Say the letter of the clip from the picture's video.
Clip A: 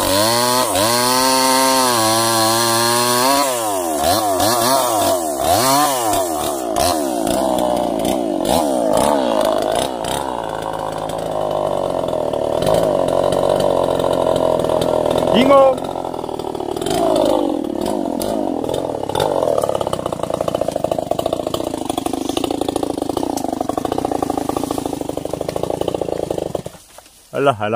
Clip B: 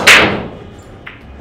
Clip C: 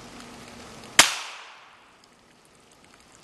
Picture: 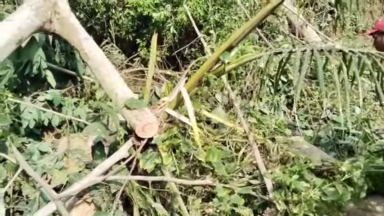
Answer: A